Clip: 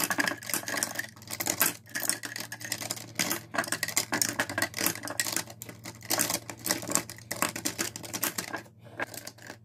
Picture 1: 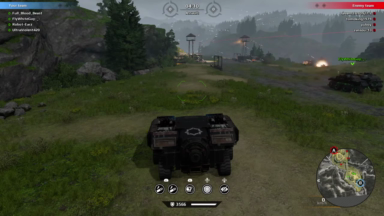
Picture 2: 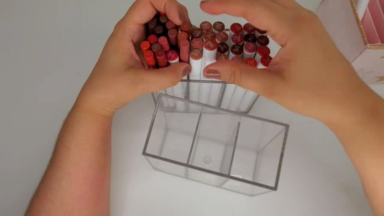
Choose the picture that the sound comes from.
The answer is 2